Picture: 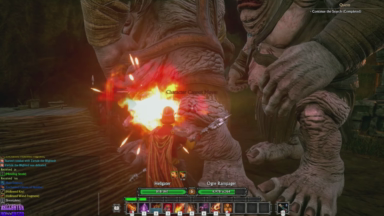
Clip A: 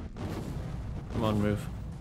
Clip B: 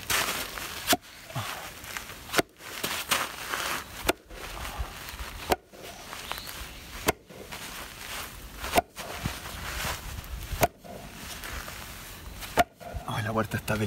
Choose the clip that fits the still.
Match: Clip A